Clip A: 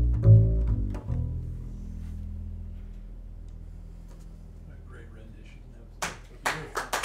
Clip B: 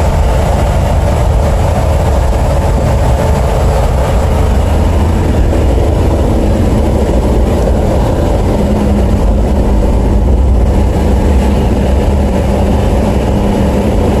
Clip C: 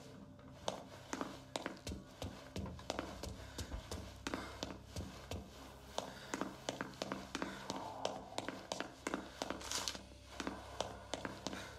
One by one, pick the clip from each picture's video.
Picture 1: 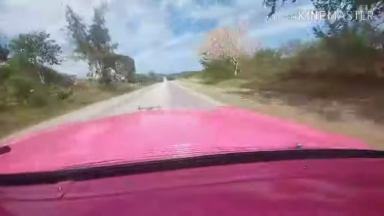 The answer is B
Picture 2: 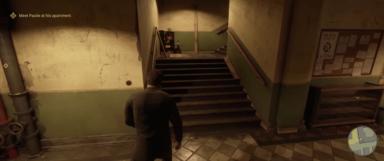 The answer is C